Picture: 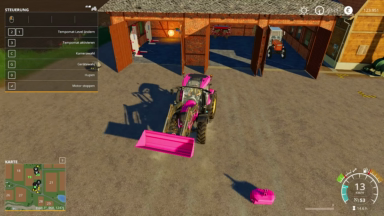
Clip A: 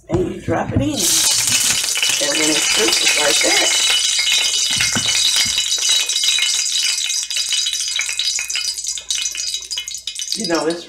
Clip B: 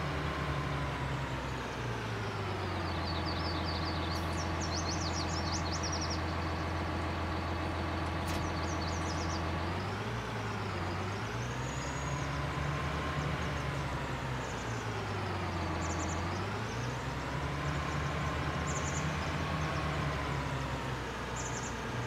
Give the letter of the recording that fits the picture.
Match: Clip B